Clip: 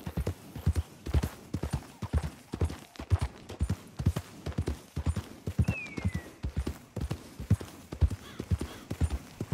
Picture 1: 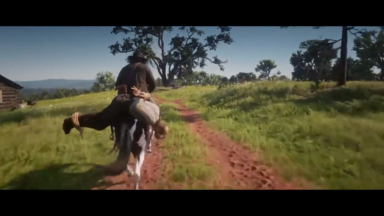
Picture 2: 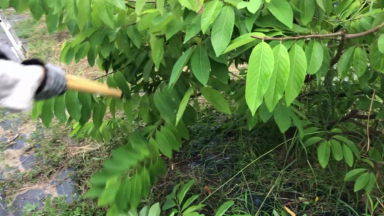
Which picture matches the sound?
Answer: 1